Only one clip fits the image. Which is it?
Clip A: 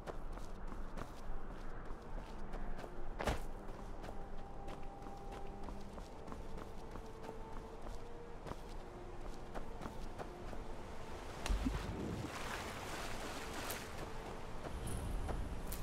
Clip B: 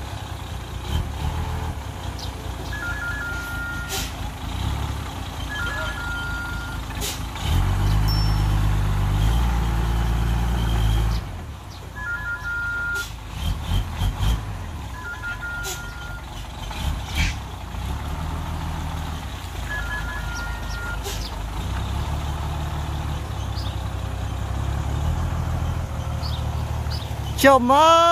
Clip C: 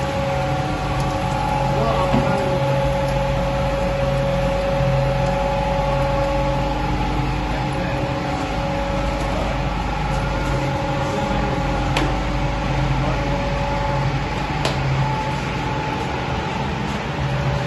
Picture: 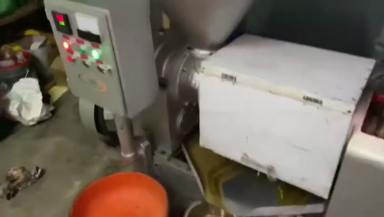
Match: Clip C